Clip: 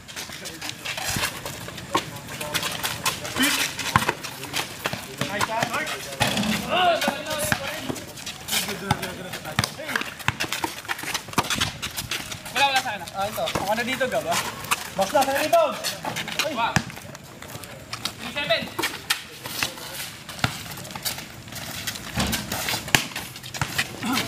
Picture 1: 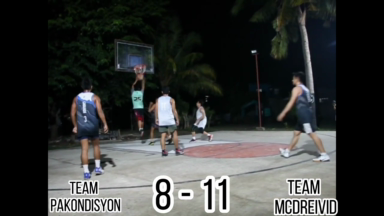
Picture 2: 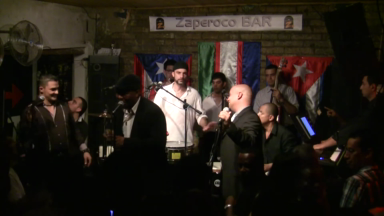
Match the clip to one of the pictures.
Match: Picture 1